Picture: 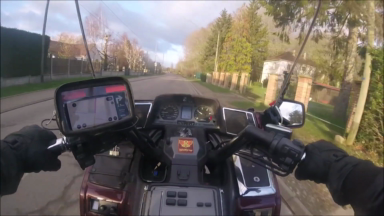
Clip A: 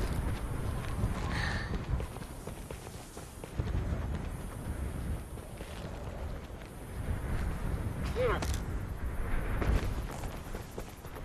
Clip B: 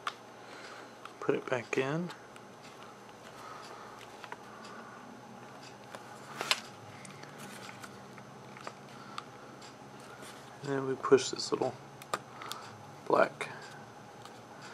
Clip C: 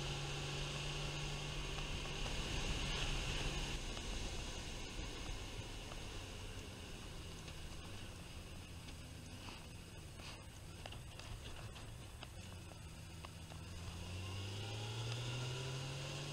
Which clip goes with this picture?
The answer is C